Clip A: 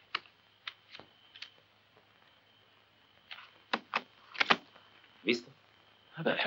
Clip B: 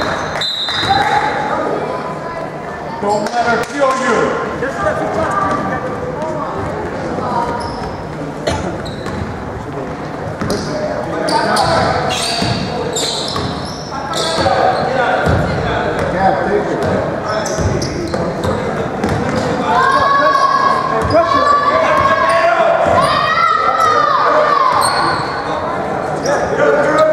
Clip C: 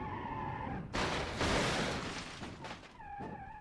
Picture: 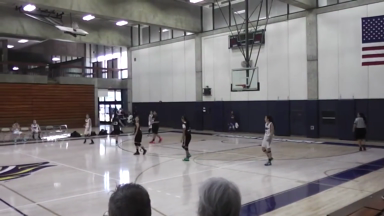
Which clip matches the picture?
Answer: B